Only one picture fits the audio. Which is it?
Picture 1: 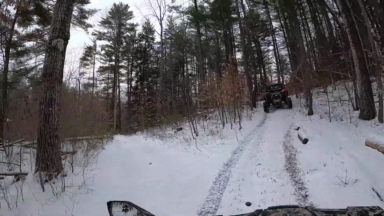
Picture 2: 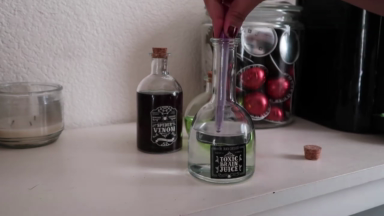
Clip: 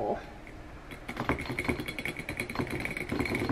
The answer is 2